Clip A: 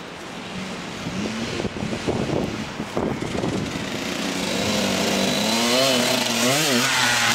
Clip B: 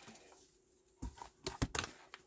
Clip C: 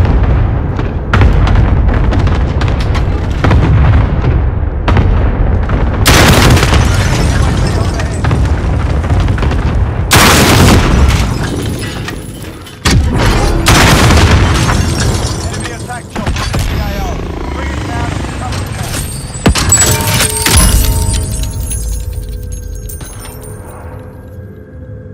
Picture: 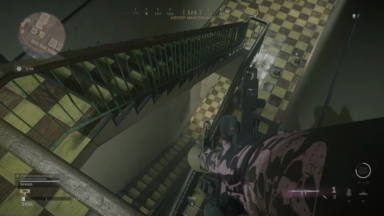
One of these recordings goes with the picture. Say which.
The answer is C